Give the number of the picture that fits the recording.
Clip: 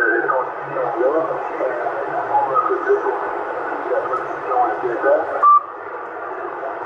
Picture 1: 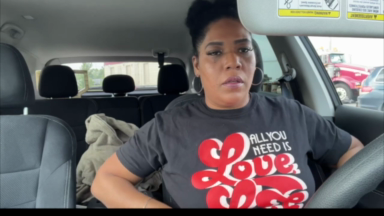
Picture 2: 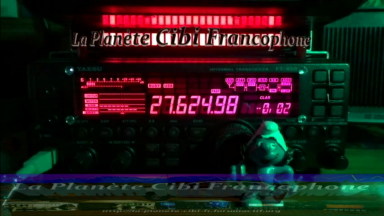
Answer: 2